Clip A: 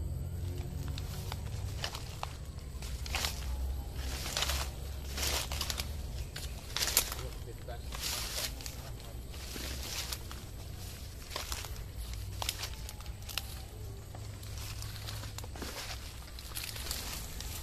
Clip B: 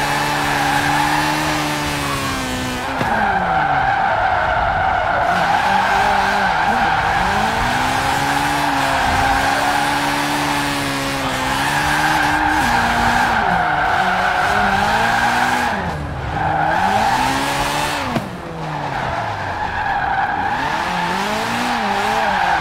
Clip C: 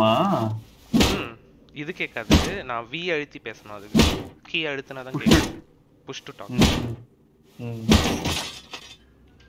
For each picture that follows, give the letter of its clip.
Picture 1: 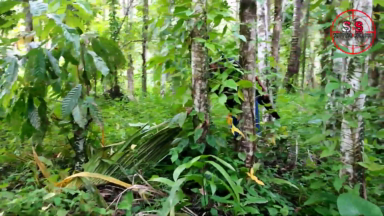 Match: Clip A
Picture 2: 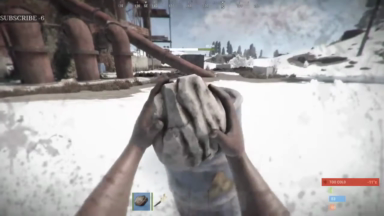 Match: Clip C